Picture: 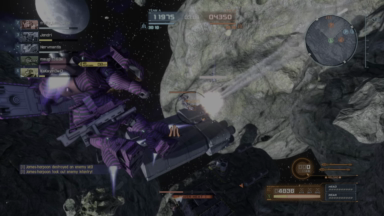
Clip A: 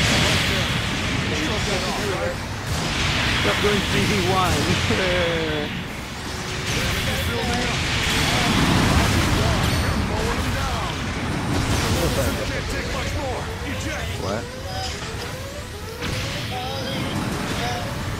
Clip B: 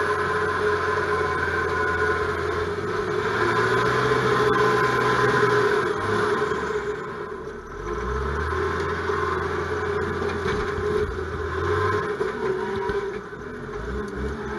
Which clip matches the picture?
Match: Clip A